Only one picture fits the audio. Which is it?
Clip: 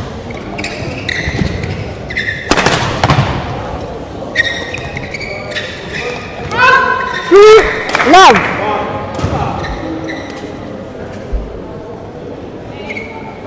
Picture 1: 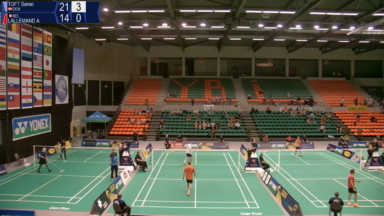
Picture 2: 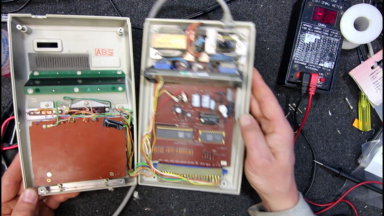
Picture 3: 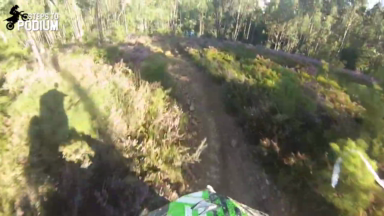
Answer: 1